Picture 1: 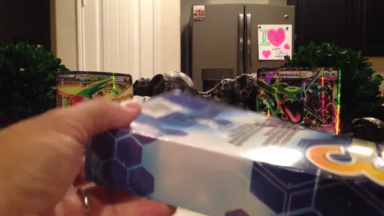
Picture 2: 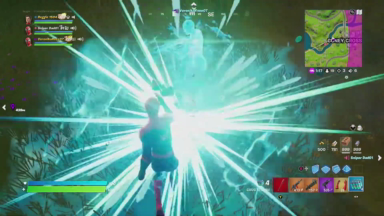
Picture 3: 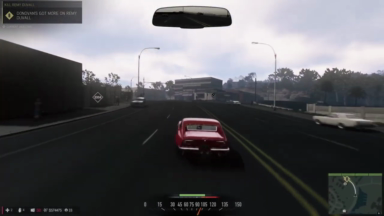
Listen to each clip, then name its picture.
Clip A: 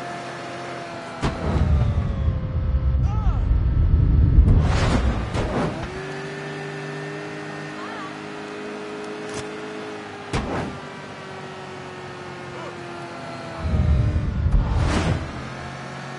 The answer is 3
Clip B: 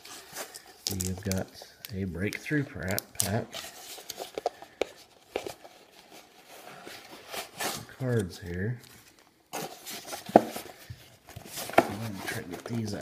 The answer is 1